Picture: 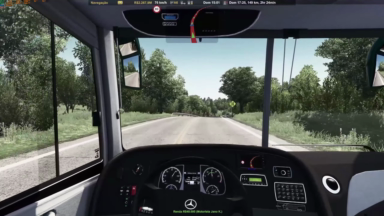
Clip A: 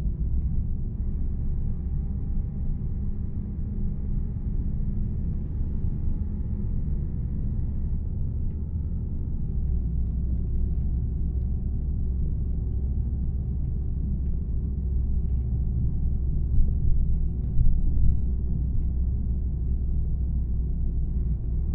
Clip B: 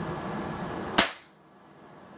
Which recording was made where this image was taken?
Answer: A